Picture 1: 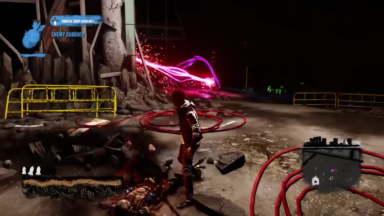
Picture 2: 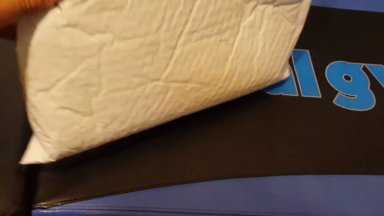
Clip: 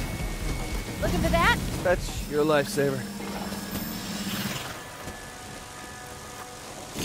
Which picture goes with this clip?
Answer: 1